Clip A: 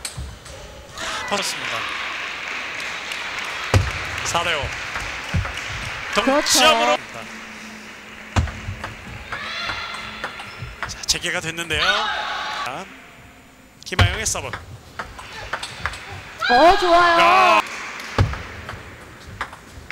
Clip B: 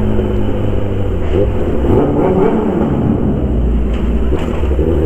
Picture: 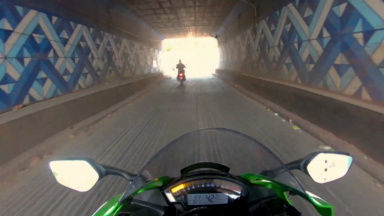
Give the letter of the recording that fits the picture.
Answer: B